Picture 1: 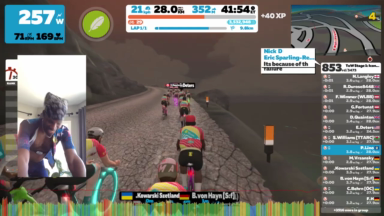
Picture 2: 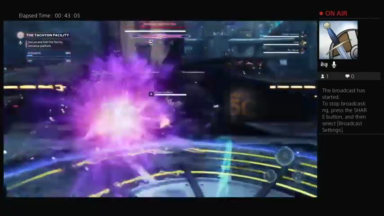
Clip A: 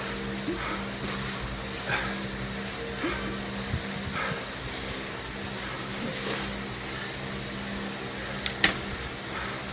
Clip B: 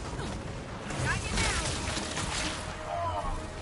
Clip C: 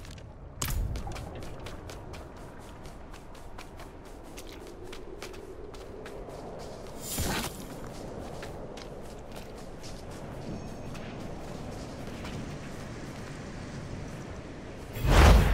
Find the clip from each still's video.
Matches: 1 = A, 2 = B